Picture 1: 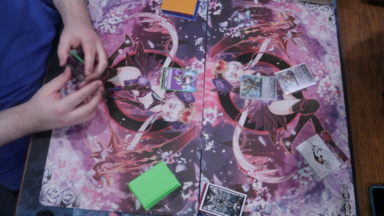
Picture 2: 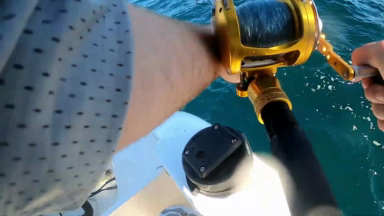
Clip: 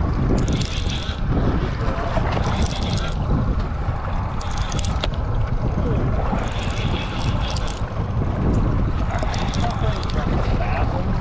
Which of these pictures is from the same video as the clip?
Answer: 2